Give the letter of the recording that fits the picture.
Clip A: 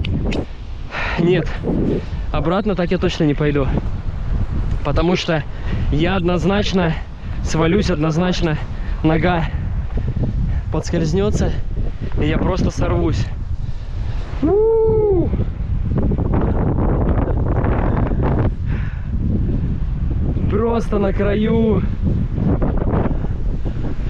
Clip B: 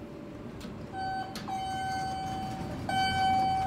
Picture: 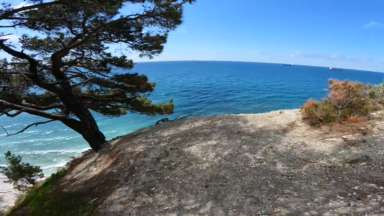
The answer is A